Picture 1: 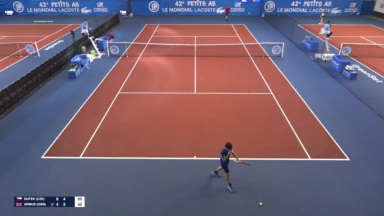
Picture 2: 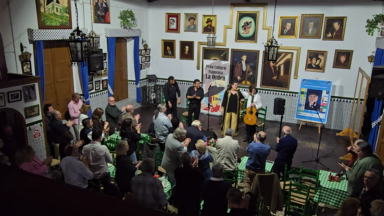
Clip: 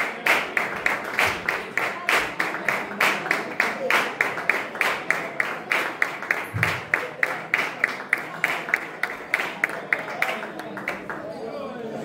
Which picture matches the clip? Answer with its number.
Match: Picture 2